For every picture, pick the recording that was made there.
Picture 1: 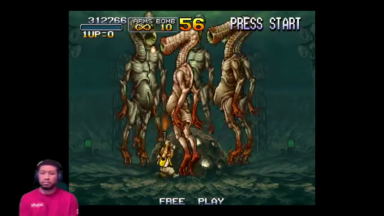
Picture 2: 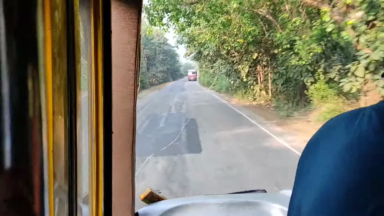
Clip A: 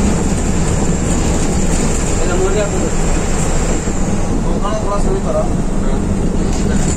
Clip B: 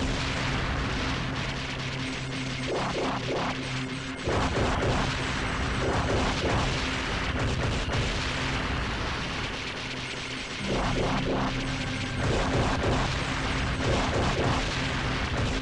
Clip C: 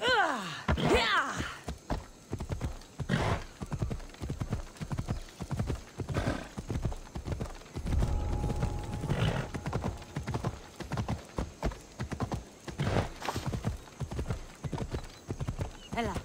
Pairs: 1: B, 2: A